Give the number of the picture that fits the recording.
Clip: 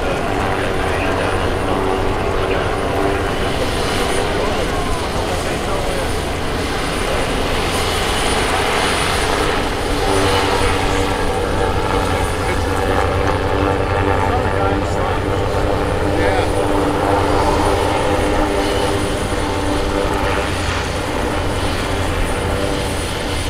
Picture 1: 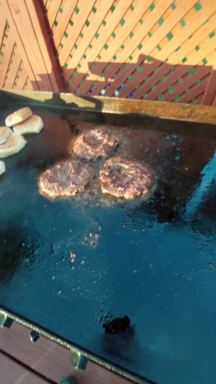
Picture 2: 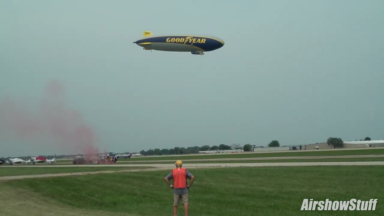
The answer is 2